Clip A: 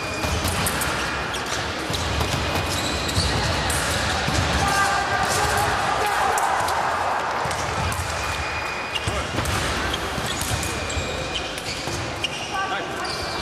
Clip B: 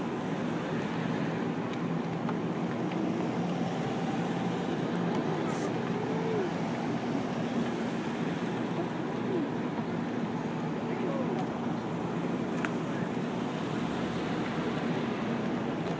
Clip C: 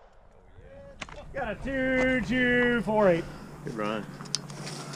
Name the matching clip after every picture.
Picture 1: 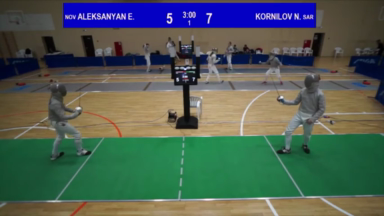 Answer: A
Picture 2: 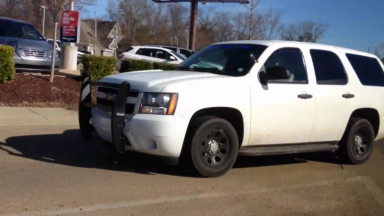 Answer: B